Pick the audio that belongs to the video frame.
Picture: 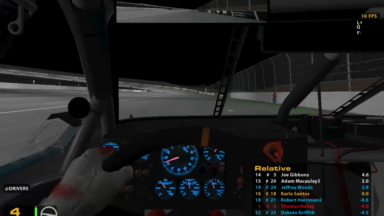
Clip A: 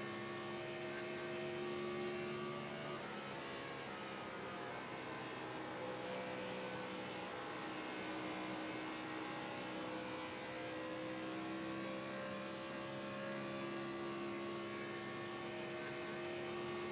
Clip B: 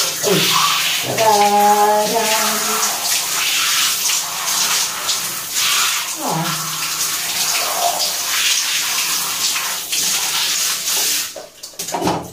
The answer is A